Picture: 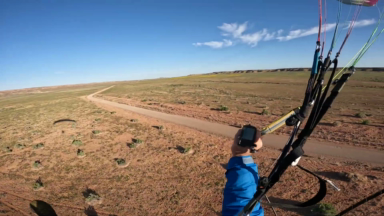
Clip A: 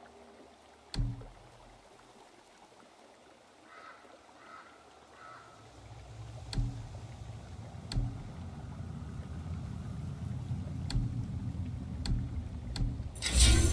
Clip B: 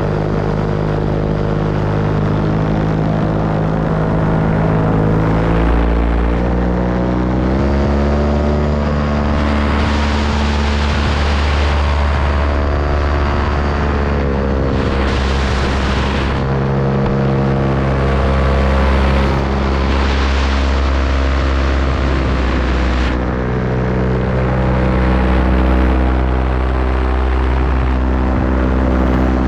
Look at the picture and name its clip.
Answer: B